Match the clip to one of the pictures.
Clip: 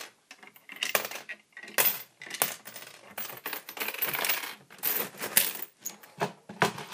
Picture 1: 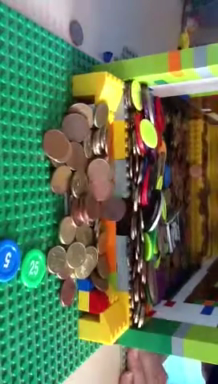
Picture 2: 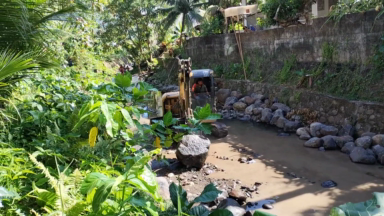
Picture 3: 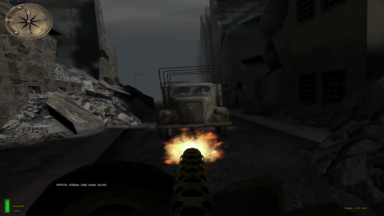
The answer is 1